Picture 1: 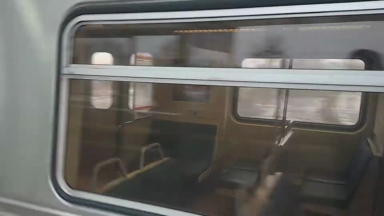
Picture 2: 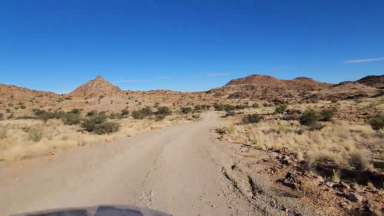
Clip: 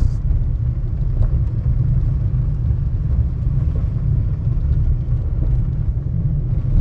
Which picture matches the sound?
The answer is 2